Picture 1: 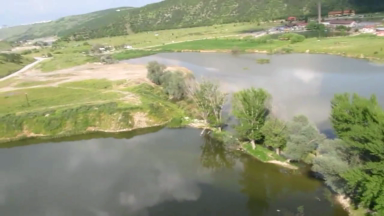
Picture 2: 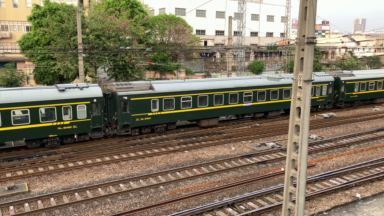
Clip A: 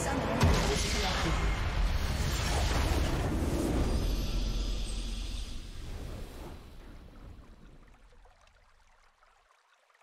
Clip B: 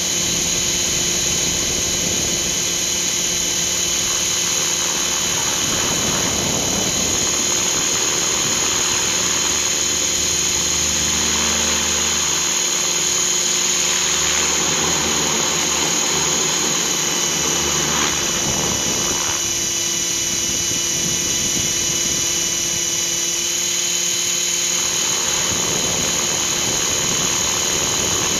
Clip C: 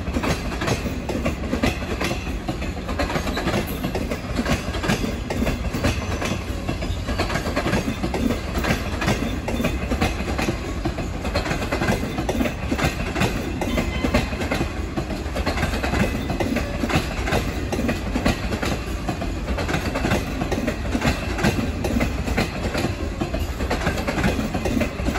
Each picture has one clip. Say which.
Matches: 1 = B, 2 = C